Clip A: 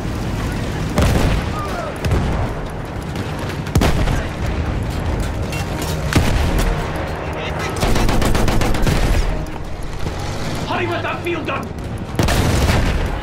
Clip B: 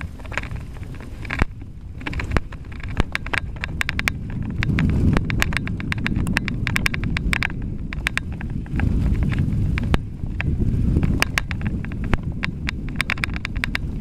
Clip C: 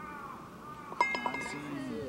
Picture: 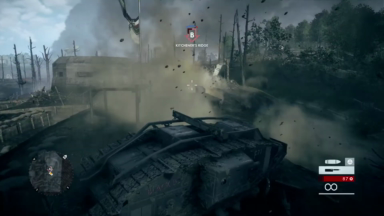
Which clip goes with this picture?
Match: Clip A